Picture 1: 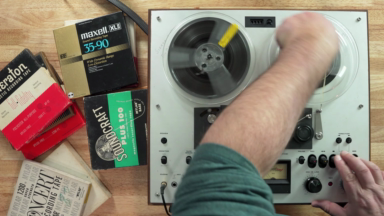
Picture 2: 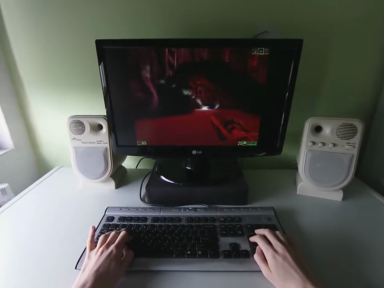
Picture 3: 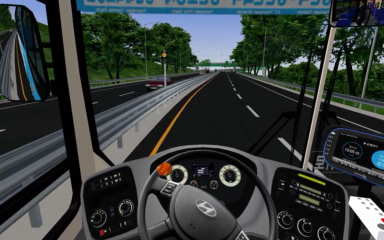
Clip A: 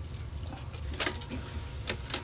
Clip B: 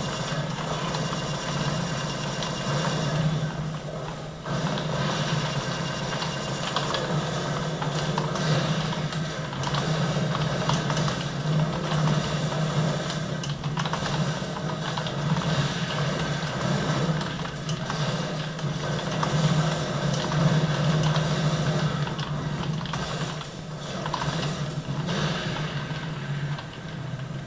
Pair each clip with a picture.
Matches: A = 1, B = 2